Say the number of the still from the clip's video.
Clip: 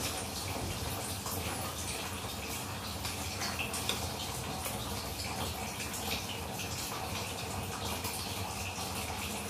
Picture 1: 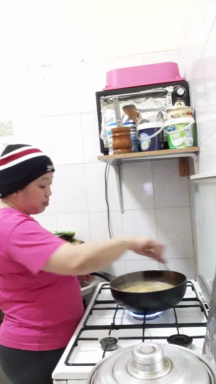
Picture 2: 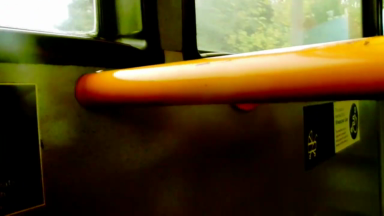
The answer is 1